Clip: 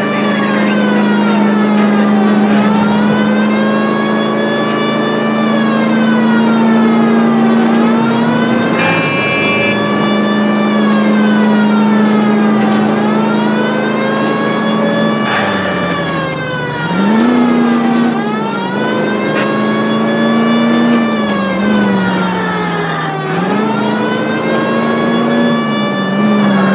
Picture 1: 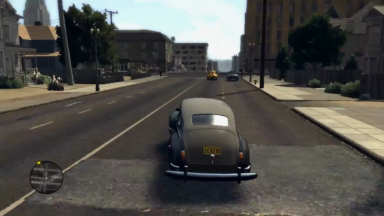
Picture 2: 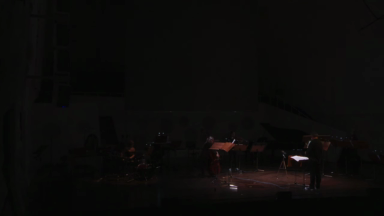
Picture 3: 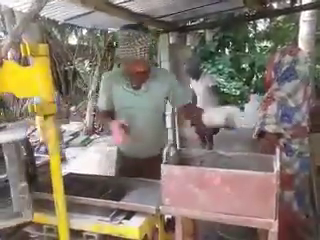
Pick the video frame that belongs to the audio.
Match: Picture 1